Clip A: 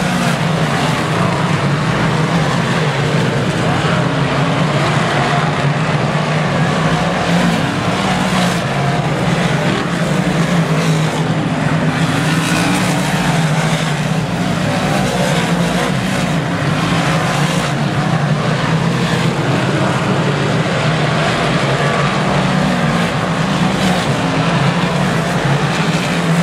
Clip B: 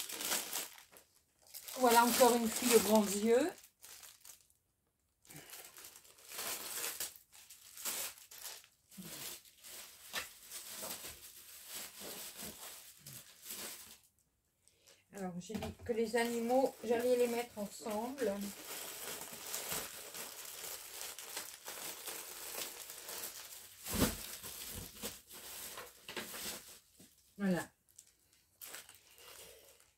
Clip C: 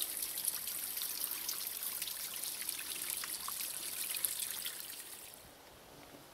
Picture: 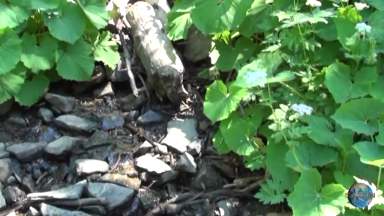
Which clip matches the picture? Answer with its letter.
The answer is C